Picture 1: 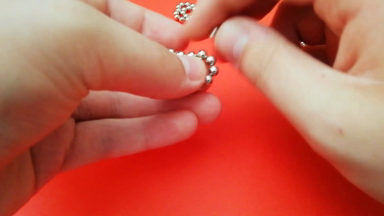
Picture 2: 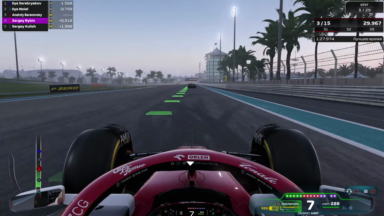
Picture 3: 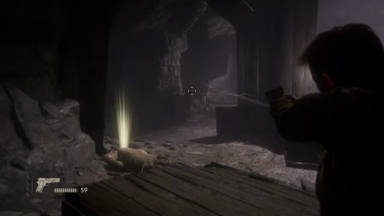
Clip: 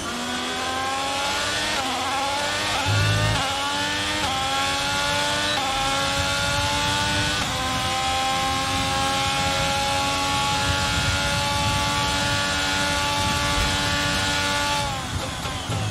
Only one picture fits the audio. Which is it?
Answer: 2